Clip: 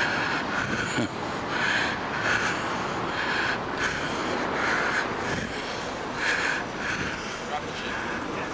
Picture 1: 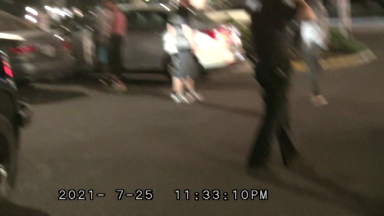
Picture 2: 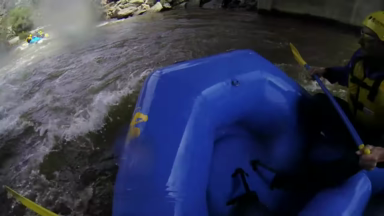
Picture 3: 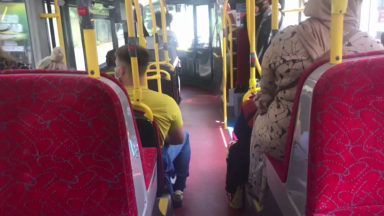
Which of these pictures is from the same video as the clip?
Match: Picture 1